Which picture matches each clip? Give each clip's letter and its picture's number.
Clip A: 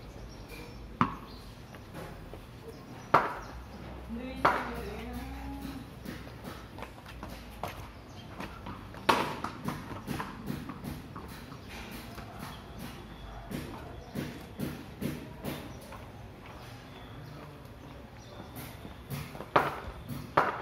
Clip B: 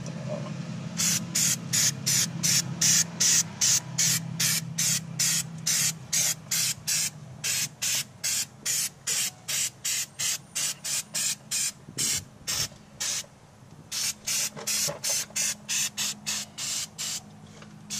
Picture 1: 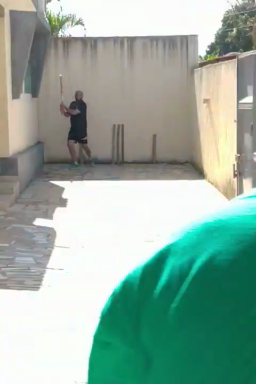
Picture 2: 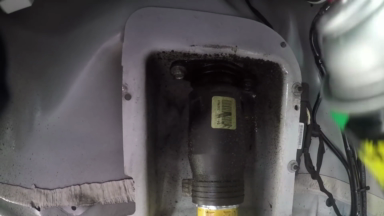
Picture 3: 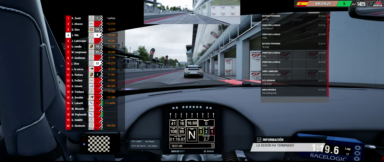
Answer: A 1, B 2